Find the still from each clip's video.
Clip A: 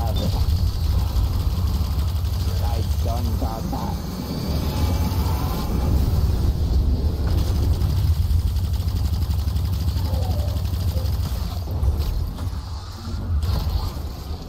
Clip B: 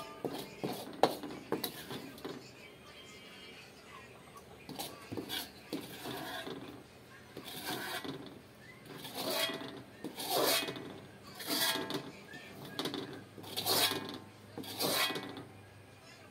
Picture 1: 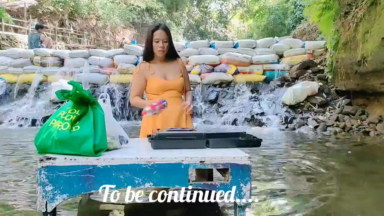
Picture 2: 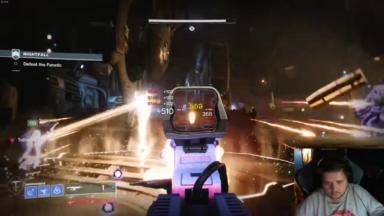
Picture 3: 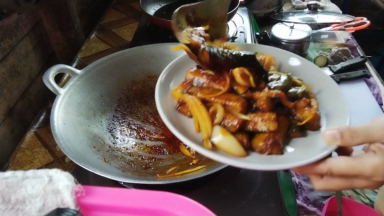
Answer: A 2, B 3